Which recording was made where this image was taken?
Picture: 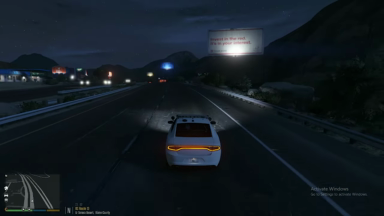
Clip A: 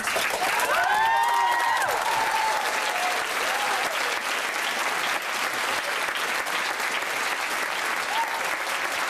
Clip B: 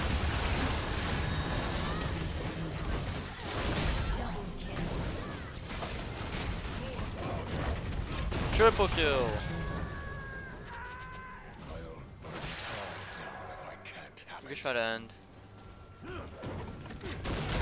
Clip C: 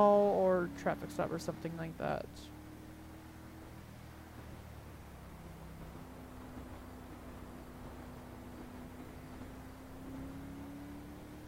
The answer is C